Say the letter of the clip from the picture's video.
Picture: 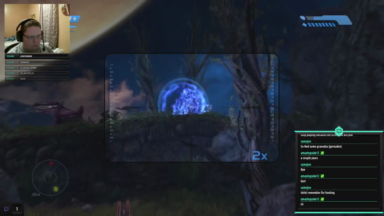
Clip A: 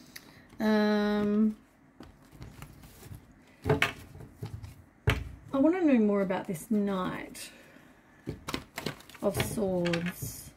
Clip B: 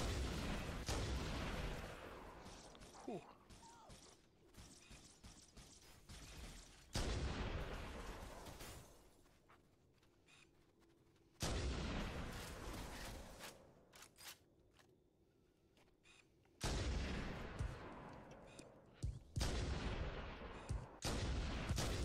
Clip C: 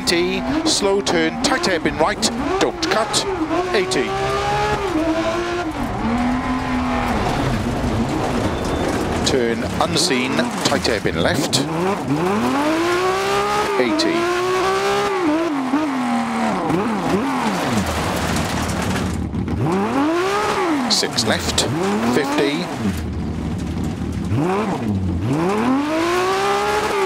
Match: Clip B